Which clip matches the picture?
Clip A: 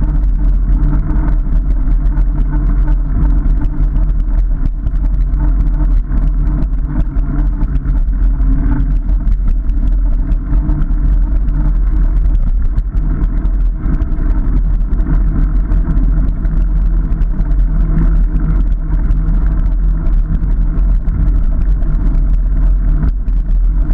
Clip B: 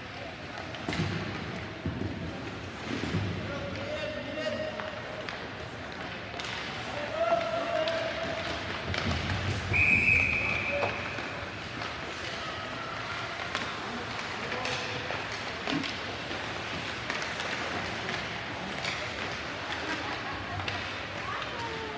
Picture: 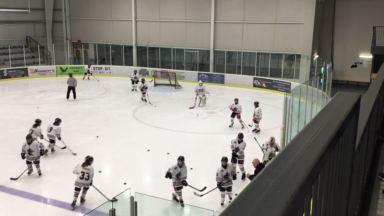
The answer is B